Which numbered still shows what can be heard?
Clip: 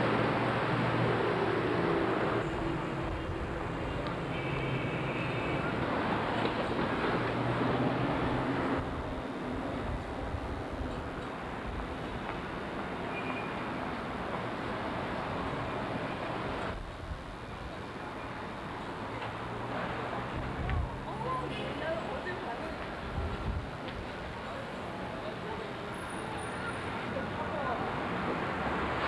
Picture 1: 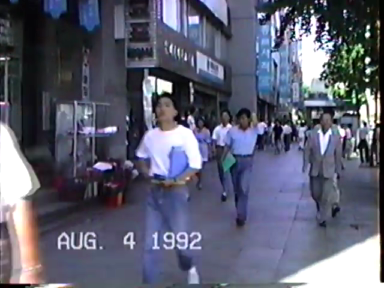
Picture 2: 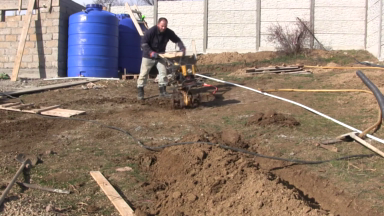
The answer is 1